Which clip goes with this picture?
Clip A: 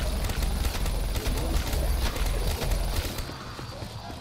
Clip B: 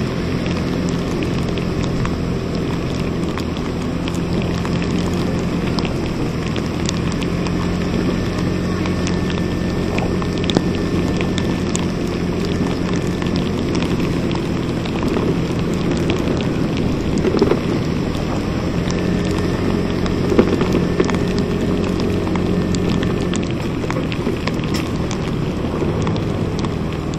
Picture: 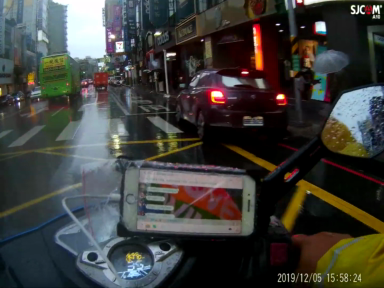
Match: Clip B